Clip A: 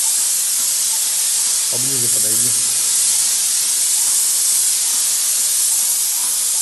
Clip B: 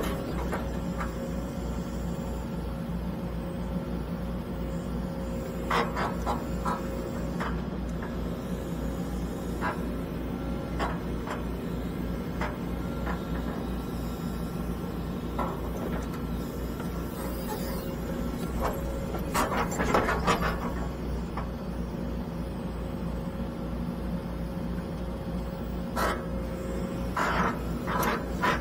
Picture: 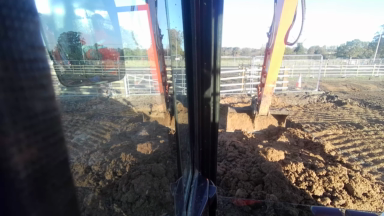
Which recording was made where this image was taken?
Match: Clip B